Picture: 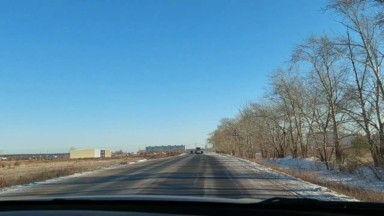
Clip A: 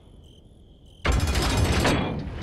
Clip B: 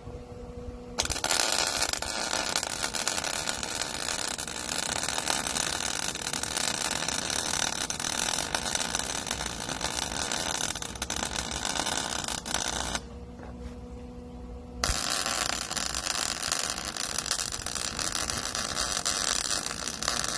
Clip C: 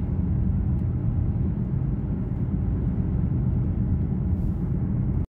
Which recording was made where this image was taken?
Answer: C